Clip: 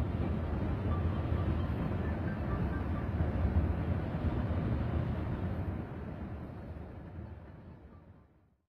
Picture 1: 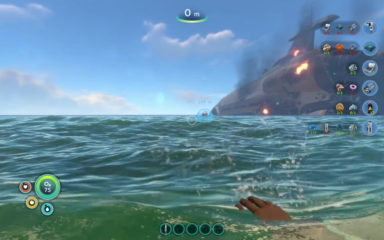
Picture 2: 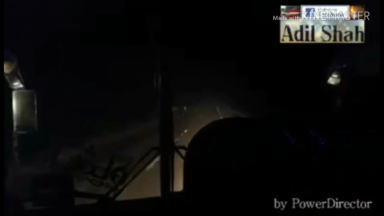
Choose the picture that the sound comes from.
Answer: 2